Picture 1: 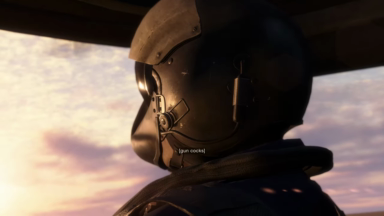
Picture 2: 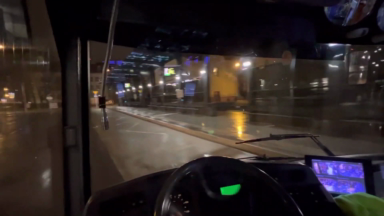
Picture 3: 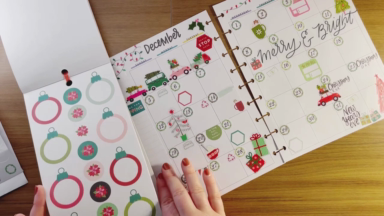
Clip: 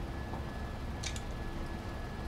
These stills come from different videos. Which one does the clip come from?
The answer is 1